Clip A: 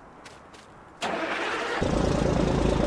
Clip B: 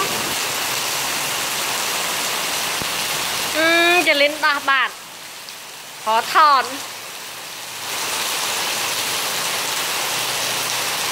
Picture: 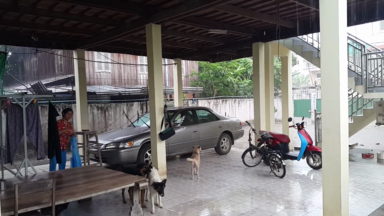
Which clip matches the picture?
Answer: B